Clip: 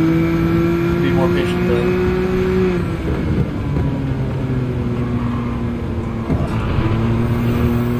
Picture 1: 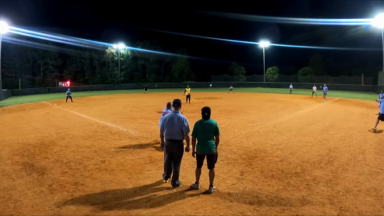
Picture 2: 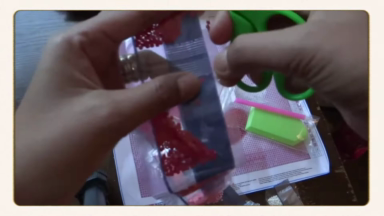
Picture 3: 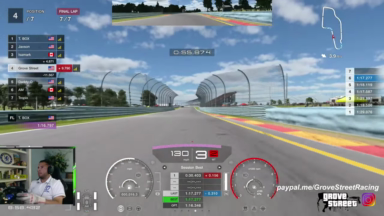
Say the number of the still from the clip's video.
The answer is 3